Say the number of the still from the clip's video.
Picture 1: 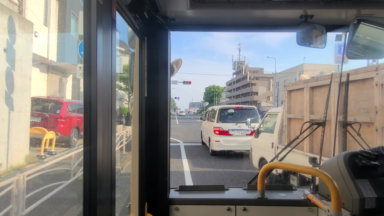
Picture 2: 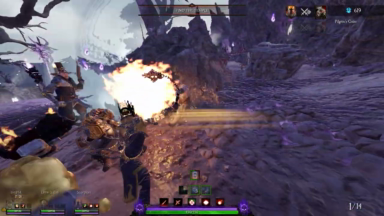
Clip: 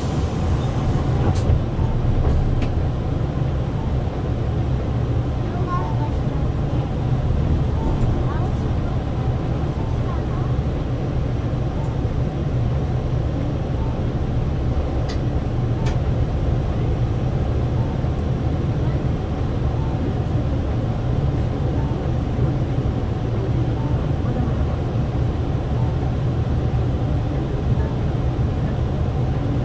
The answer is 1